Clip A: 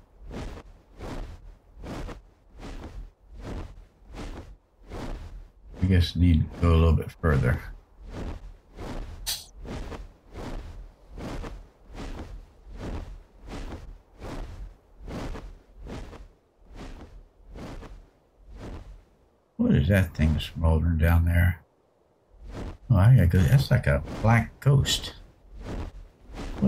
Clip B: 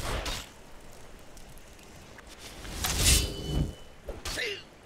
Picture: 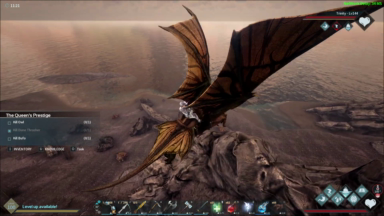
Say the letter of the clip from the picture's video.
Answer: A